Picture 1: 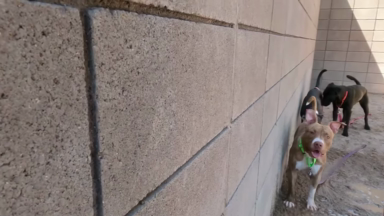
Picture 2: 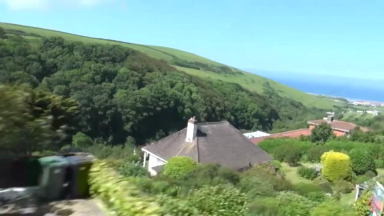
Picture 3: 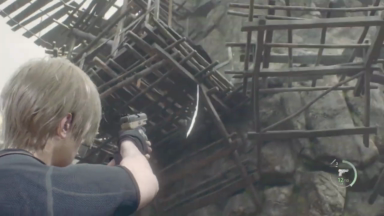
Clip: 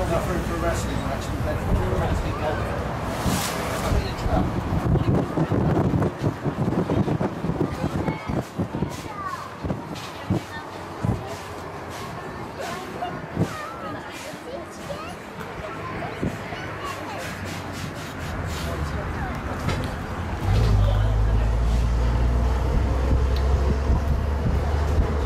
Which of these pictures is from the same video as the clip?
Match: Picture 2